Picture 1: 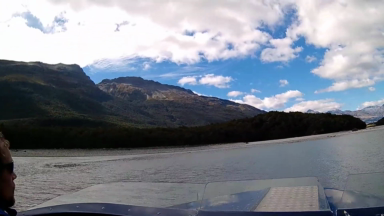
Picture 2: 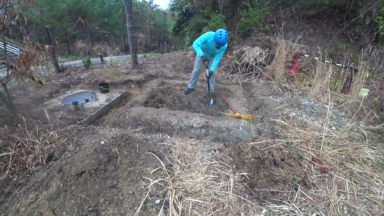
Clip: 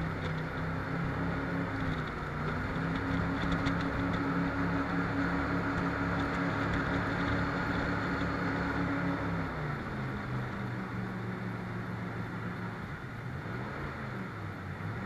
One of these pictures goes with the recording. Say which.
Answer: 1